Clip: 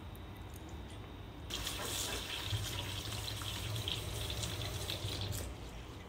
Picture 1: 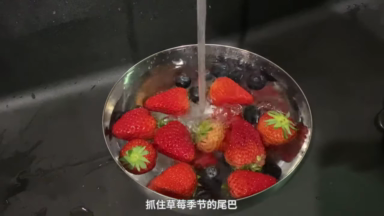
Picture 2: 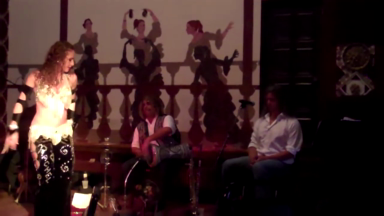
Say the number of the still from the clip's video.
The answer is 1